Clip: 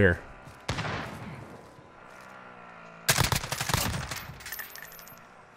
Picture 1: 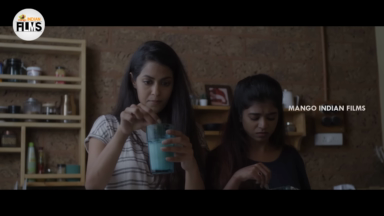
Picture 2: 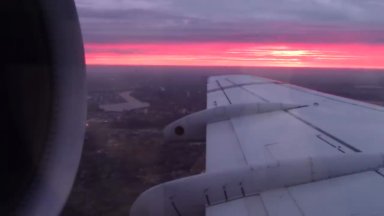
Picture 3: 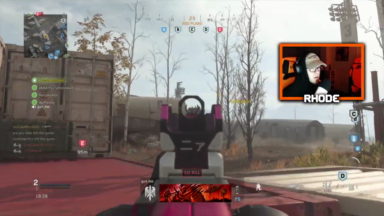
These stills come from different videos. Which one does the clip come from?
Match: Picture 3